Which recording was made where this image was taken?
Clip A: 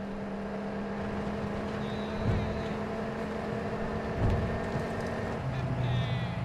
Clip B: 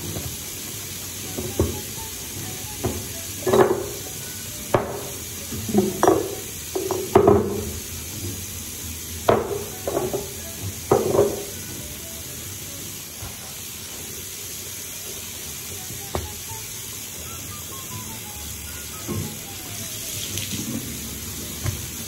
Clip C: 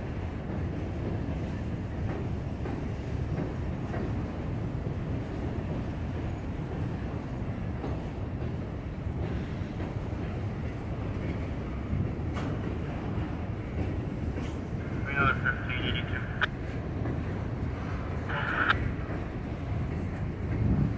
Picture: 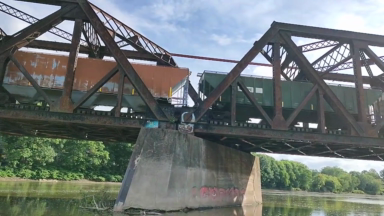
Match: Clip C